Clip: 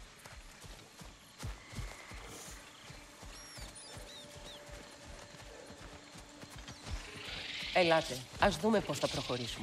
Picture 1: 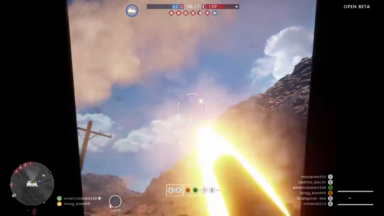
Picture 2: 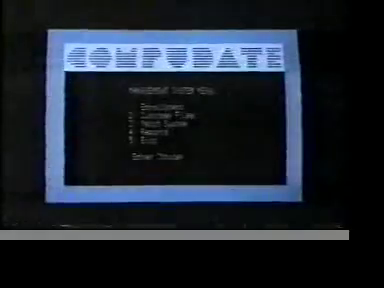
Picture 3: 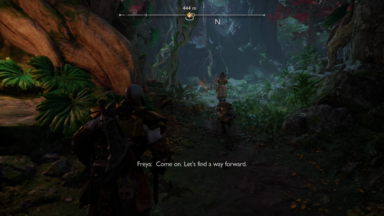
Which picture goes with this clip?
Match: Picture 3